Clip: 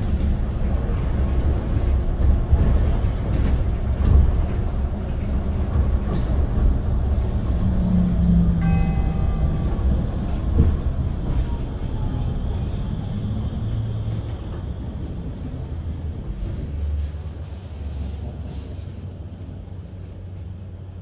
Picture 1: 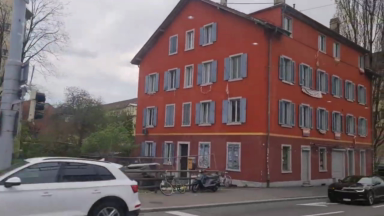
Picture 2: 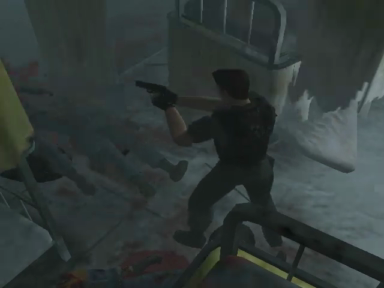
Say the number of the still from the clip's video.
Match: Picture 1